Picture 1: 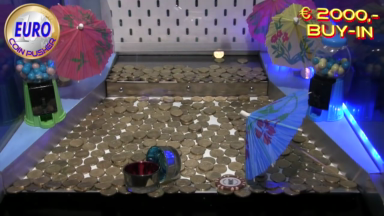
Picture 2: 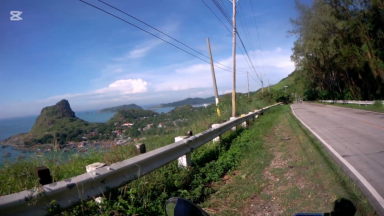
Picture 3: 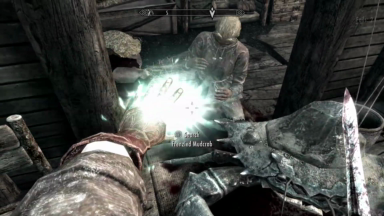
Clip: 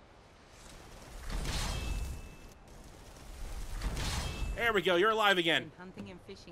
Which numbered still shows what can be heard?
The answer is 3